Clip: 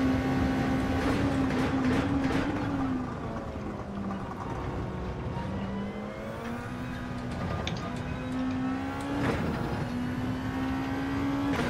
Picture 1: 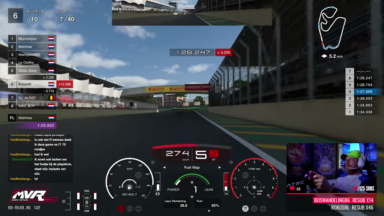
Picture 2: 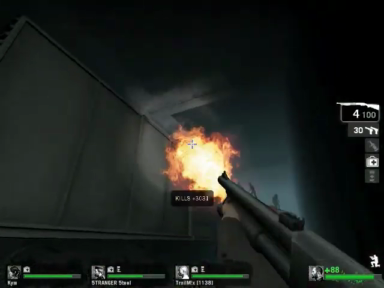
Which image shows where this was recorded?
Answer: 1